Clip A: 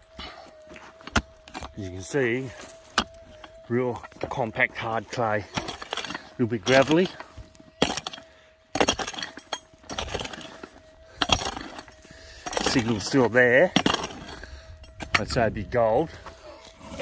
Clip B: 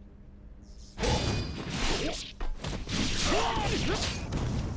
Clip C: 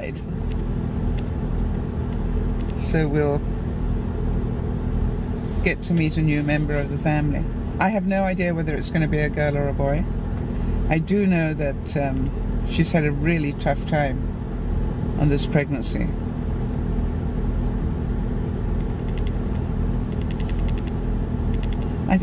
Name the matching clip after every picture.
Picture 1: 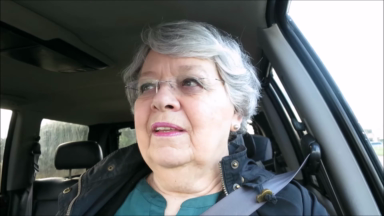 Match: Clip C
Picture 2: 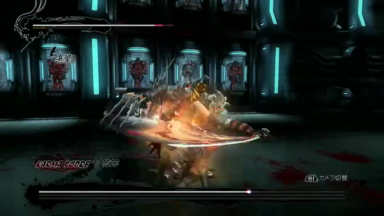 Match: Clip B